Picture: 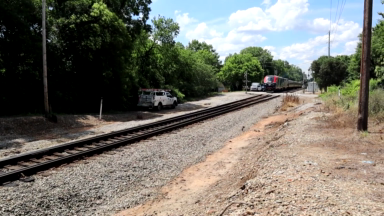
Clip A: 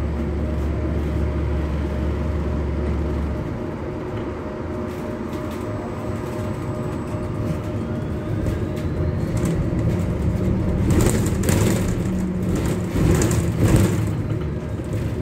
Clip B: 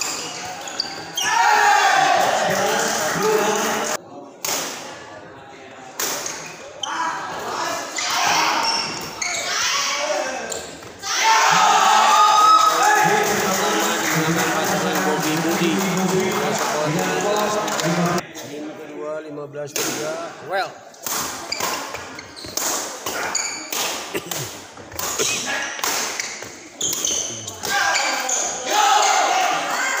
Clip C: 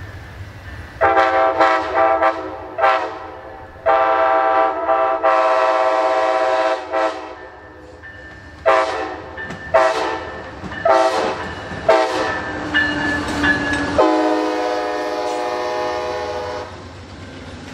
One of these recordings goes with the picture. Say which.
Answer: C